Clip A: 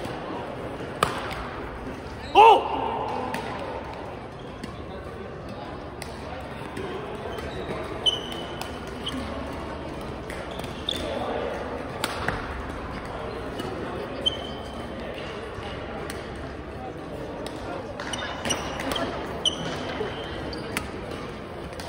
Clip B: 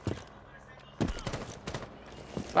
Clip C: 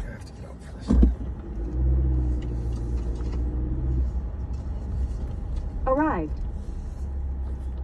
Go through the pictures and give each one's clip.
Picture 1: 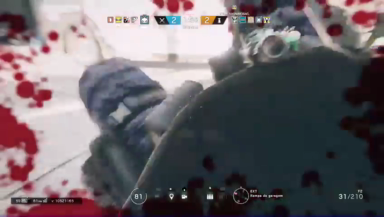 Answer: B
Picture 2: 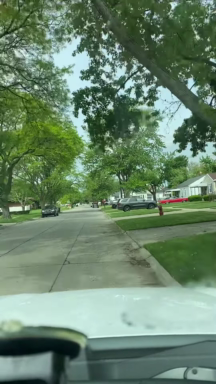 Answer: C